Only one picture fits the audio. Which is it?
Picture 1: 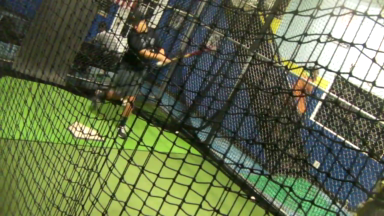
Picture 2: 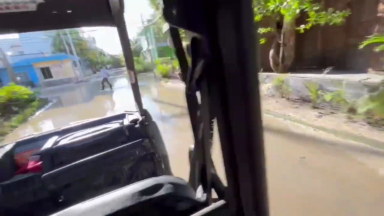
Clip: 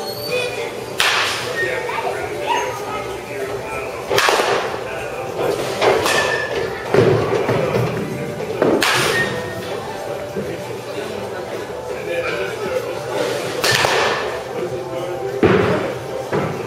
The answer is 1